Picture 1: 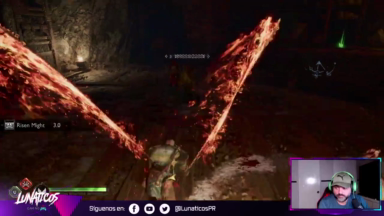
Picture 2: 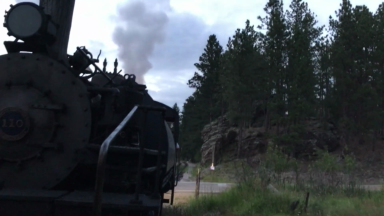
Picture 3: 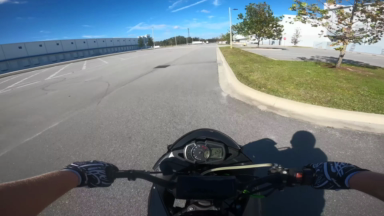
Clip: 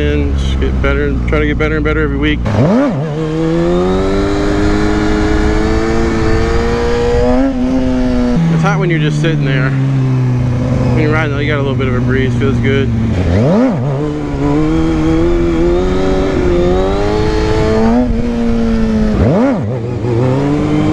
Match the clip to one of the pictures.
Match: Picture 3